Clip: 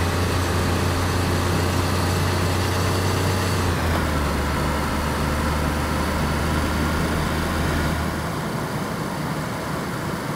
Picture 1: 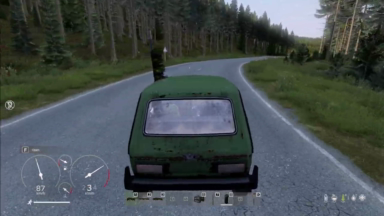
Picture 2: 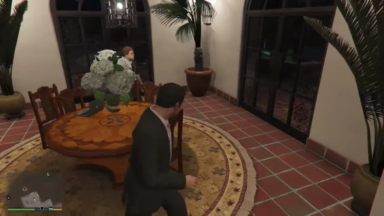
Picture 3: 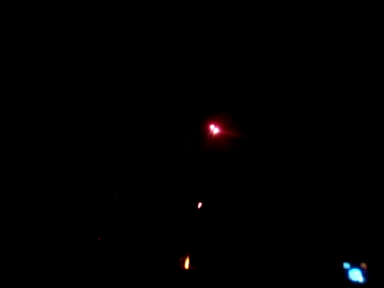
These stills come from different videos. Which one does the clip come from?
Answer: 1